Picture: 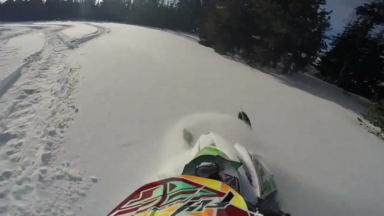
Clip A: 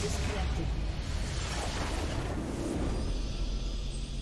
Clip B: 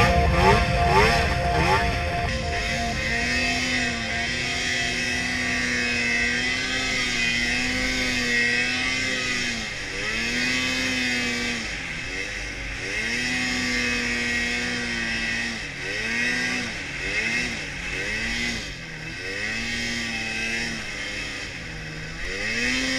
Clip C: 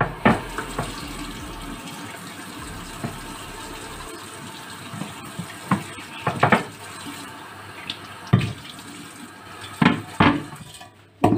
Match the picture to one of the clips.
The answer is B